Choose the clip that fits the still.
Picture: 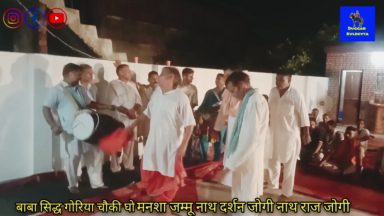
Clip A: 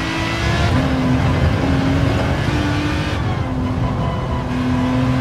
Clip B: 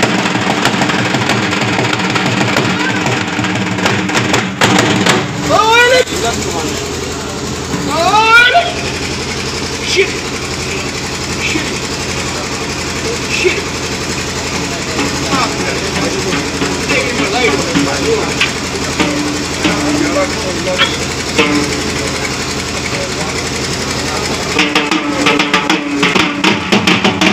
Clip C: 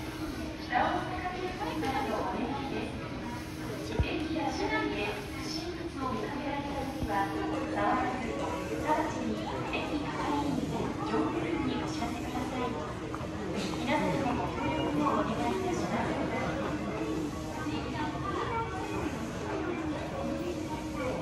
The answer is B